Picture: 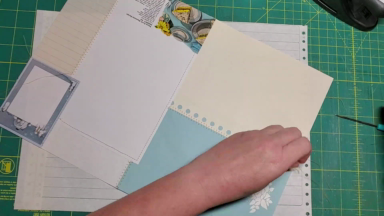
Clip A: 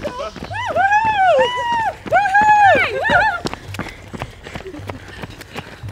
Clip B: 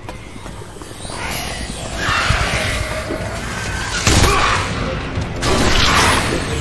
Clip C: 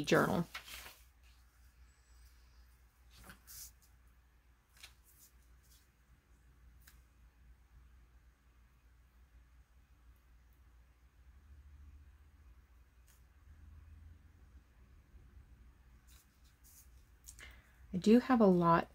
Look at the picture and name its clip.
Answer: C